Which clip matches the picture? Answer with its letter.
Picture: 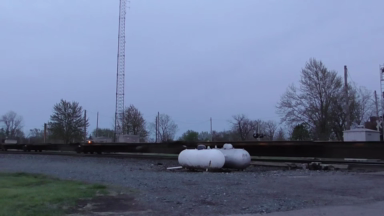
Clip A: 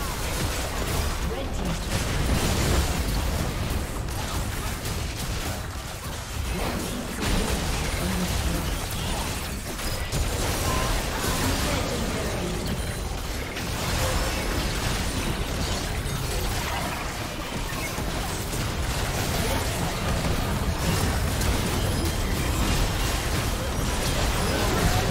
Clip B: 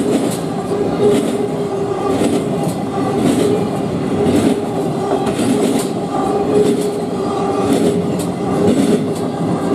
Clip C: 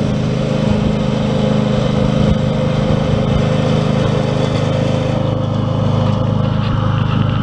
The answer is B